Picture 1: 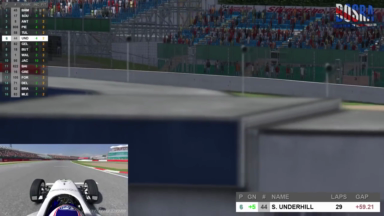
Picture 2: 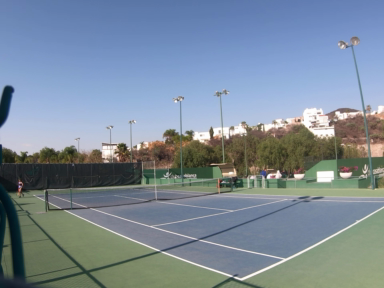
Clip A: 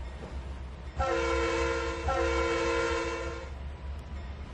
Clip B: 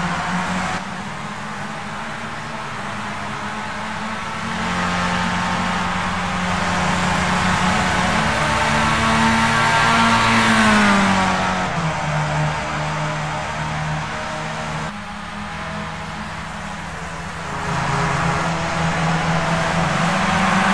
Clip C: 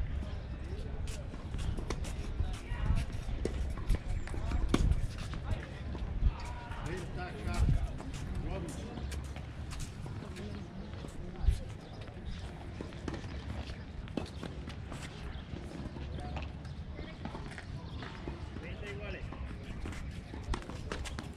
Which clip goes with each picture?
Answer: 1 B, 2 C